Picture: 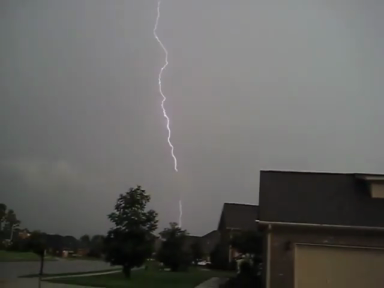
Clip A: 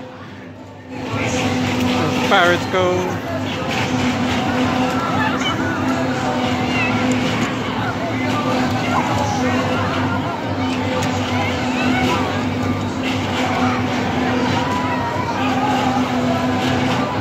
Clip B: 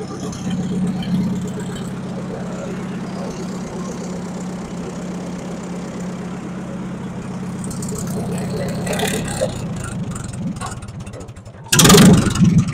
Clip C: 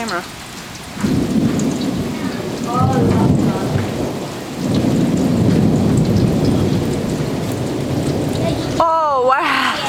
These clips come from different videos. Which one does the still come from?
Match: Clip C